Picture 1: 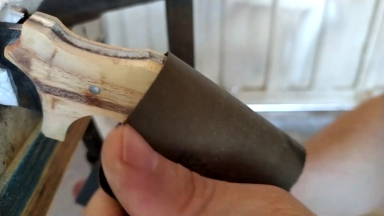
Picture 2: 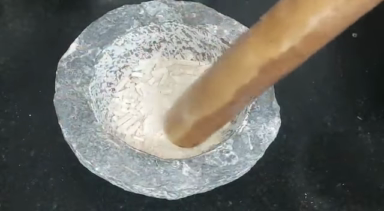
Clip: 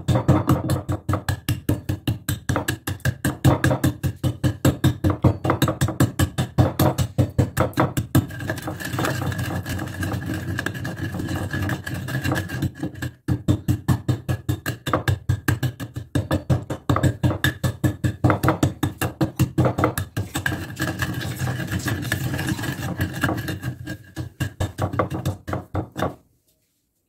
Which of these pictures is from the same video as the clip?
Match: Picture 2